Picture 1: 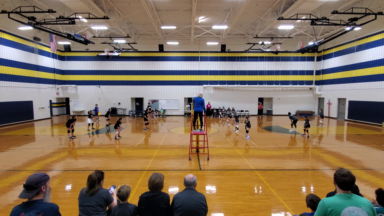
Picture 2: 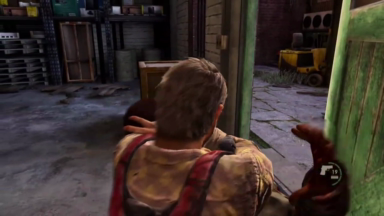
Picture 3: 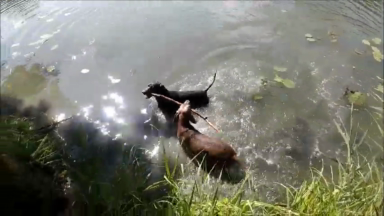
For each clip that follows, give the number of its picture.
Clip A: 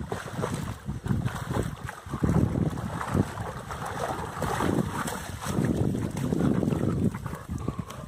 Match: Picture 3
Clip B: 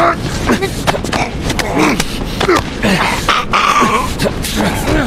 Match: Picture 2